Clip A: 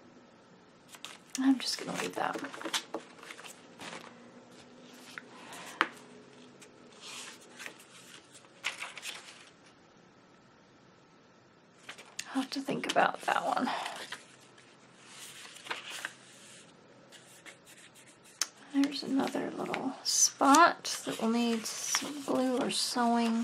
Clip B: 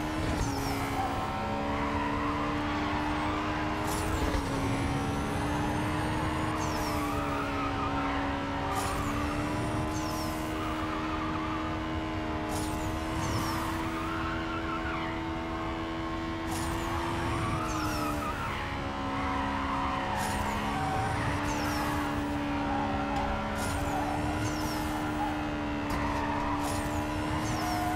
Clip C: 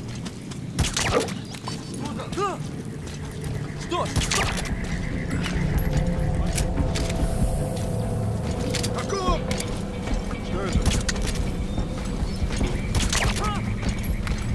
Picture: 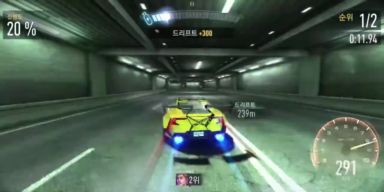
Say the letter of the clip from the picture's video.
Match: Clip B